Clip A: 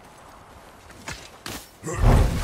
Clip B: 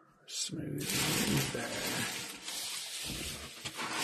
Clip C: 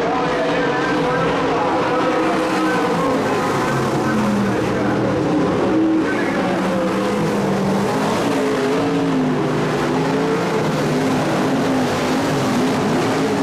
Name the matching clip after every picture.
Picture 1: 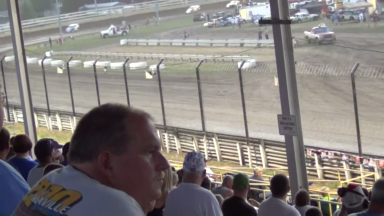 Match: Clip C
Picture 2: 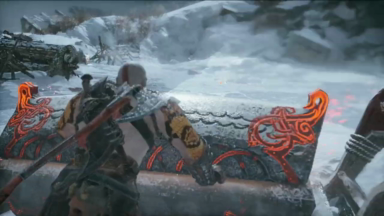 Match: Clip A